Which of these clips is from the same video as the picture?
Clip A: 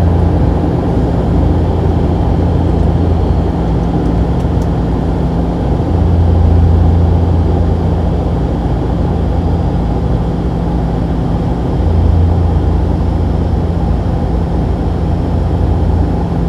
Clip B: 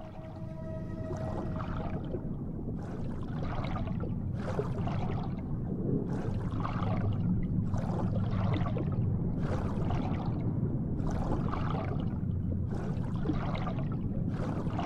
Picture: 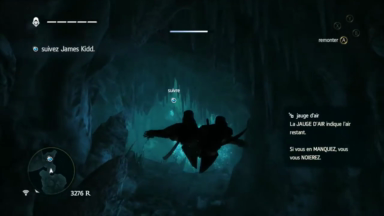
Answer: B